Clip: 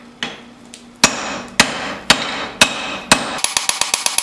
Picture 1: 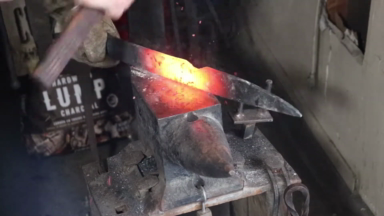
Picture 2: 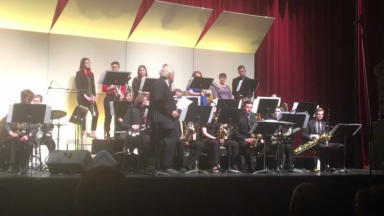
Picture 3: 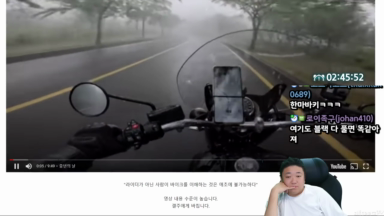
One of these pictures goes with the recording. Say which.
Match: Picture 1